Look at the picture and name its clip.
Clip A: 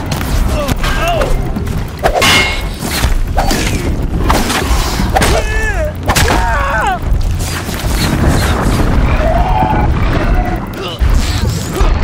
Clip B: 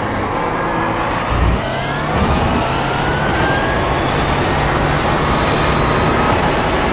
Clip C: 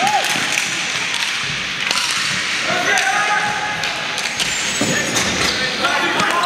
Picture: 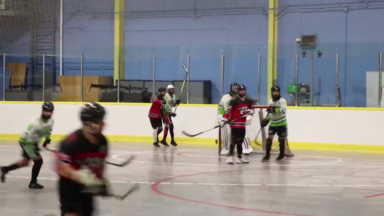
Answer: C